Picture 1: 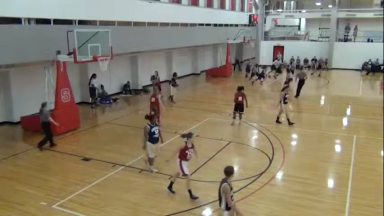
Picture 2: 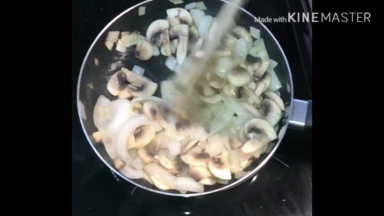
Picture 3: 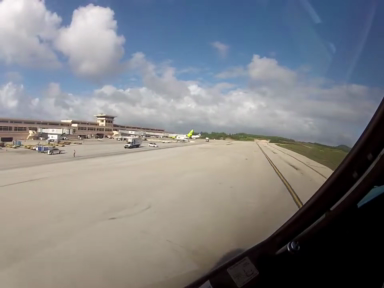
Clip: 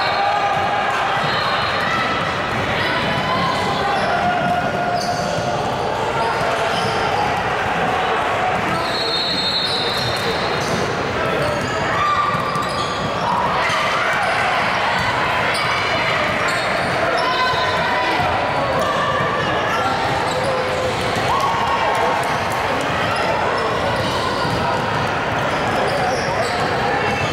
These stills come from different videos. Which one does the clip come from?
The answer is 1